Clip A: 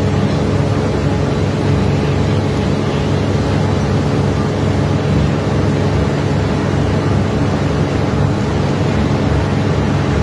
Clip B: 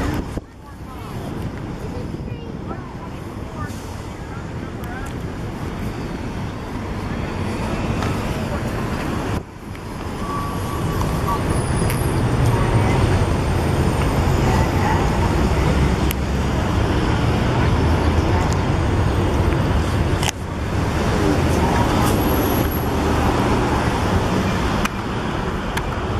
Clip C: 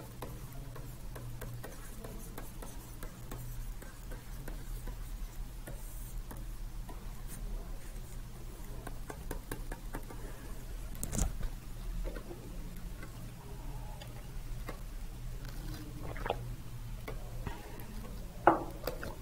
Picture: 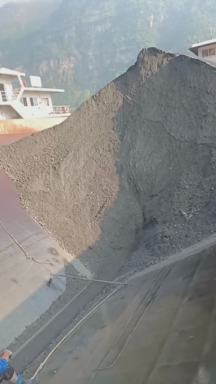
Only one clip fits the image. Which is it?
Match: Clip A